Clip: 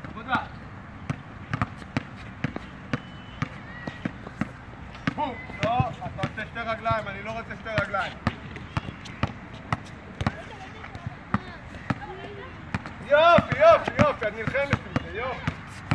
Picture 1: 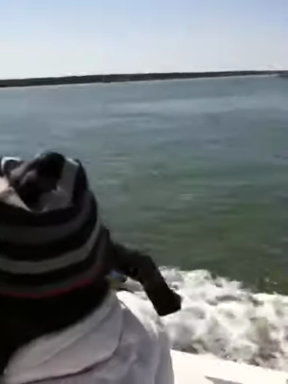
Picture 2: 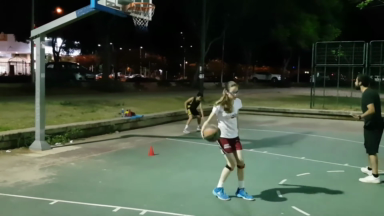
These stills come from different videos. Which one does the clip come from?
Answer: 2